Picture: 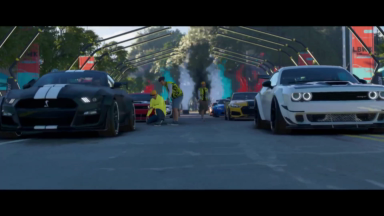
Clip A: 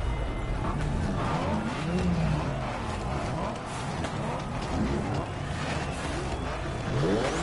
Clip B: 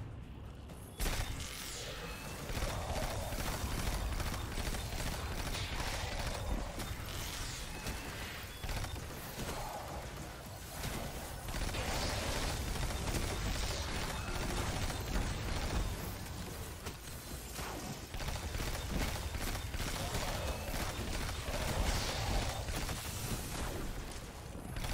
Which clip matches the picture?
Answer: A